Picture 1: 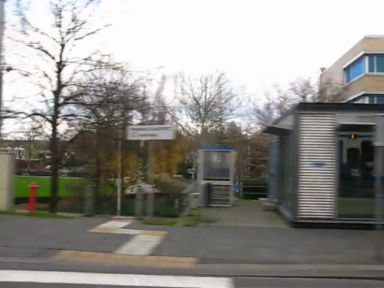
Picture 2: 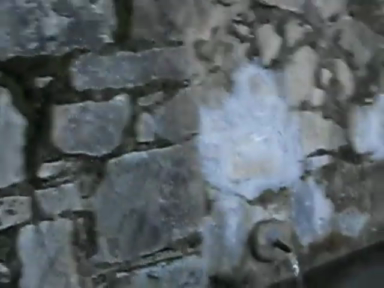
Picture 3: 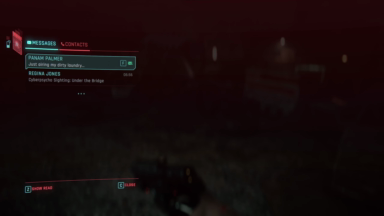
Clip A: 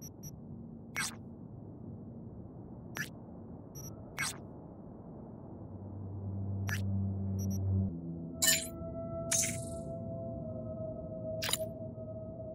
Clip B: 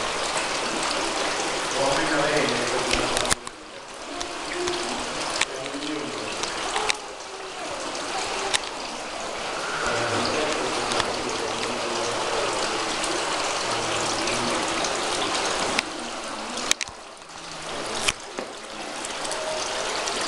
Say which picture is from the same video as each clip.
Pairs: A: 3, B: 2